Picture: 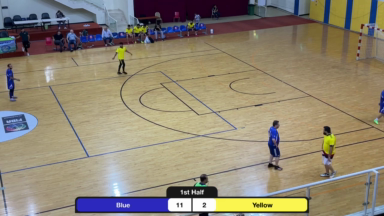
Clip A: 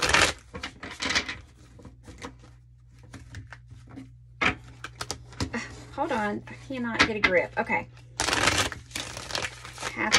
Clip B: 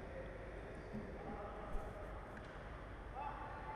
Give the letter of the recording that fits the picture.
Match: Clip B